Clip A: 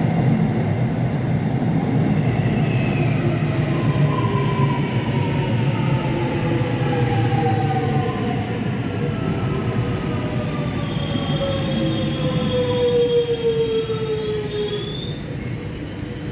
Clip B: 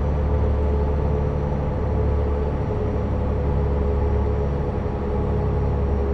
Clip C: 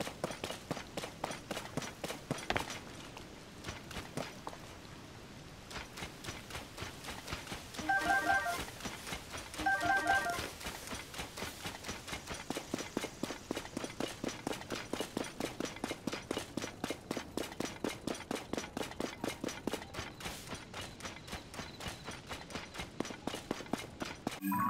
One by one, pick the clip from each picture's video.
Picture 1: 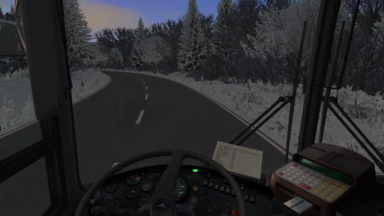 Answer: B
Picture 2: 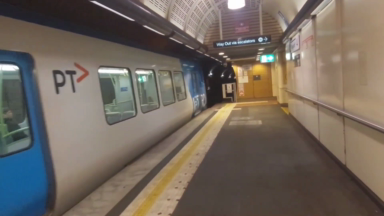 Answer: A